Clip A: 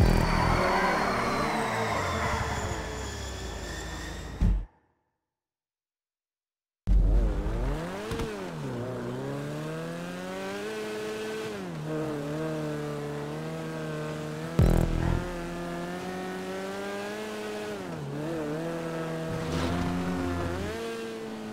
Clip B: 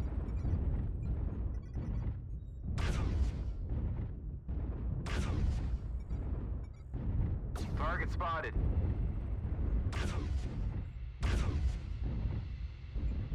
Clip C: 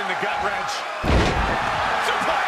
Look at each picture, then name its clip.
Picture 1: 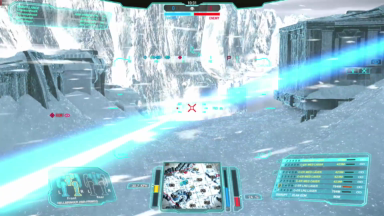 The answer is B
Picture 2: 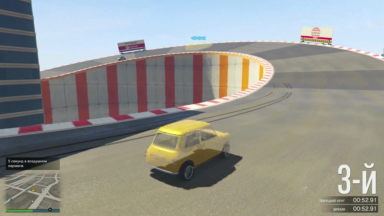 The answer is A